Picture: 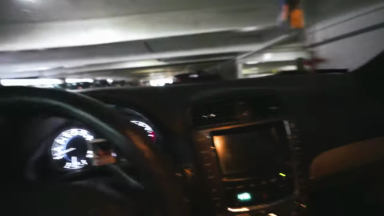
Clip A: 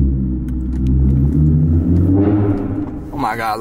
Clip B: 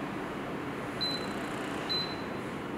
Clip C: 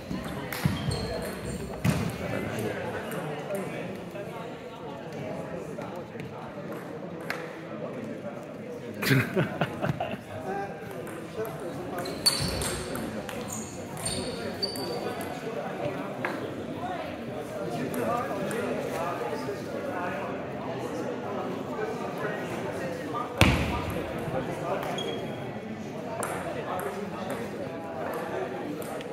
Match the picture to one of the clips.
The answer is A